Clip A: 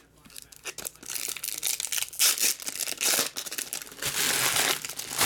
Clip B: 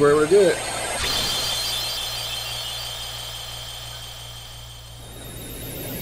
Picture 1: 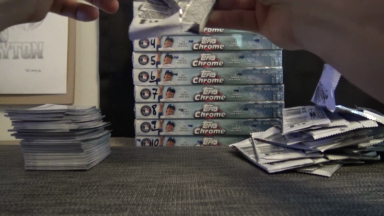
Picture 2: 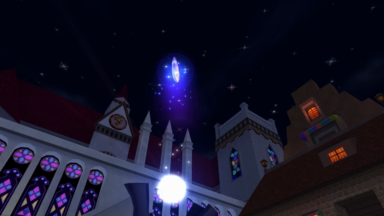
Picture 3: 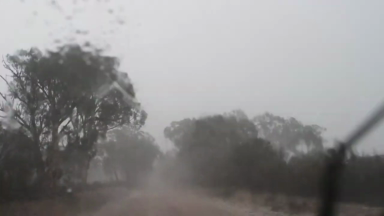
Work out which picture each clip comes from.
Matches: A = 1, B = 2